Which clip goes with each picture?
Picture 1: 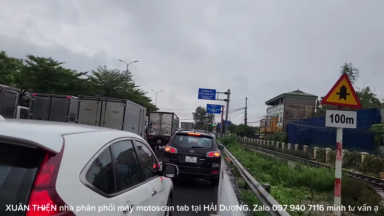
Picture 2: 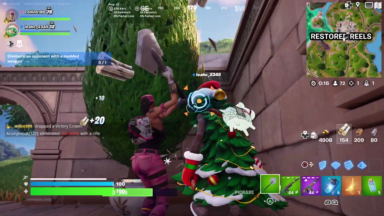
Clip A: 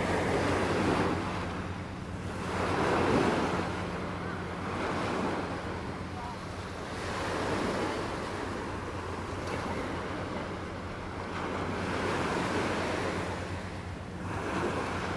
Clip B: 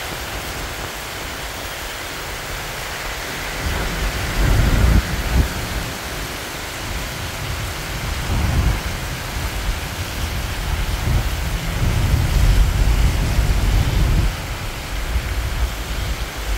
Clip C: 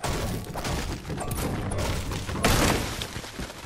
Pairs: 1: B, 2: C